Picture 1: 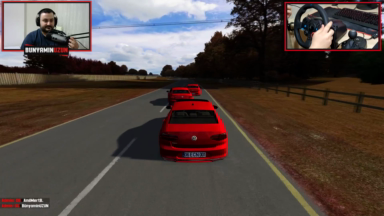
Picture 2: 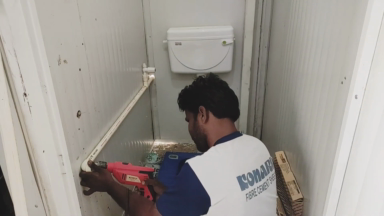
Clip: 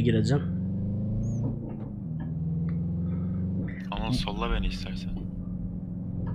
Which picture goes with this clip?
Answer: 1